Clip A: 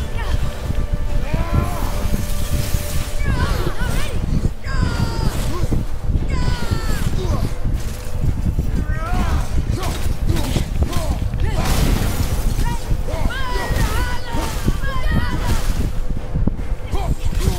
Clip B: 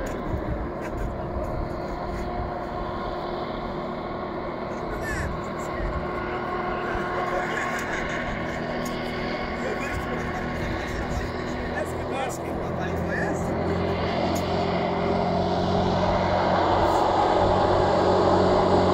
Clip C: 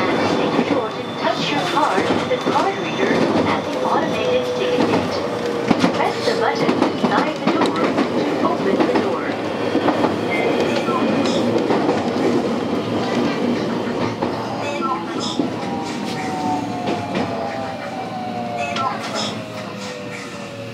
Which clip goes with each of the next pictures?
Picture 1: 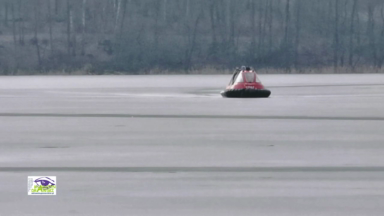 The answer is B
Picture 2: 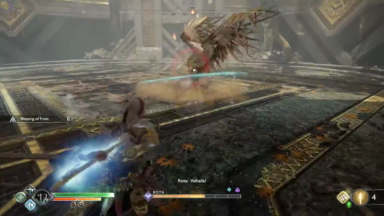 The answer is A